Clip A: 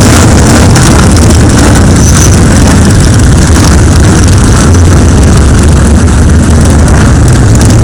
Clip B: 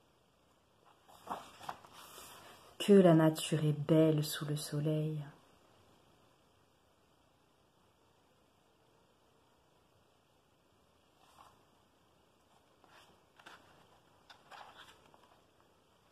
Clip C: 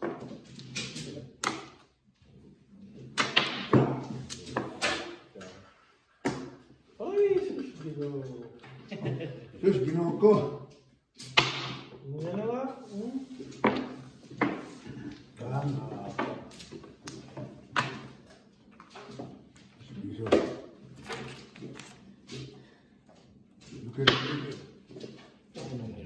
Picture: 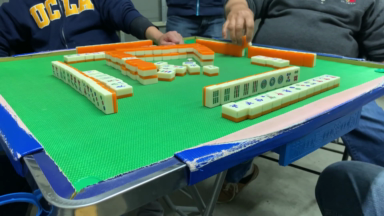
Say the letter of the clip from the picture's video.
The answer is C